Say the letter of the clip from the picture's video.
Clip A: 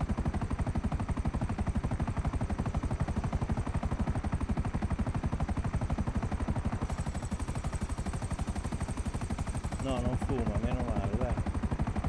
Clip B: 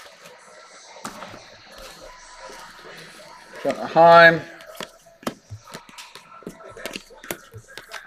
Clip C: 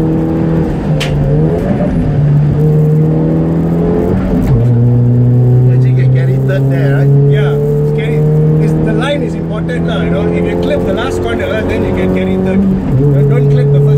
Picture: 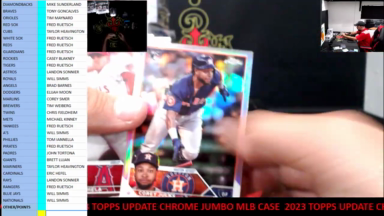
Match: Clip B